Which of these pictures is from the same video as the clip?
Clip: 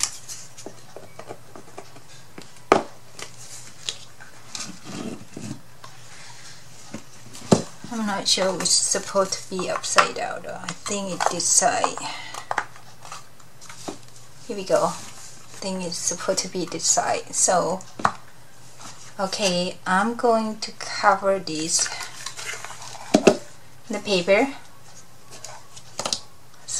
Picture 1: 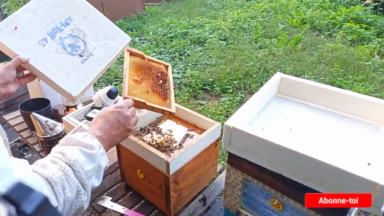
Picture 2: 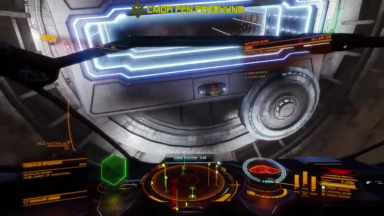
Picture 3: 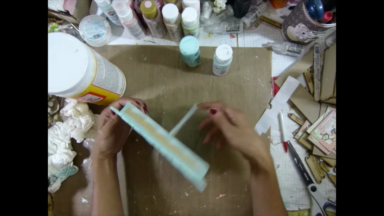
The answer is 3